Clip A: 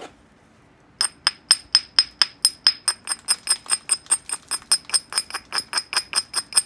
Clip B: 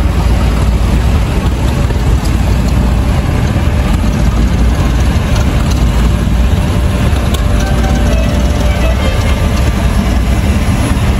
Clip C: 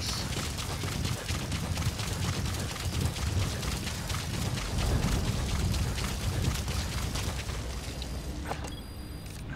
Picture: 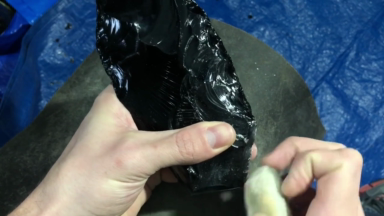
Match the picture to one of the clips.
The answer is A